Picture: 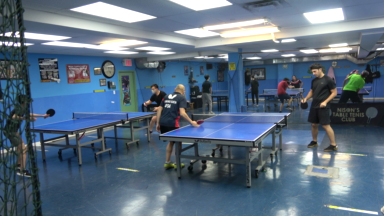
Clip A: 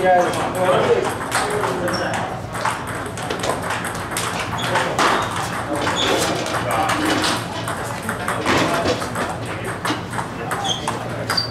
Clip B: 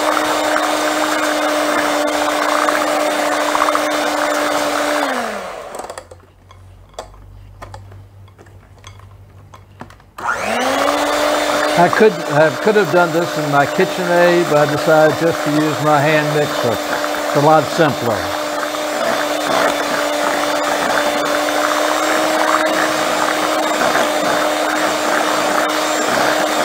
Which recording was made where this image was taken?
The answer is A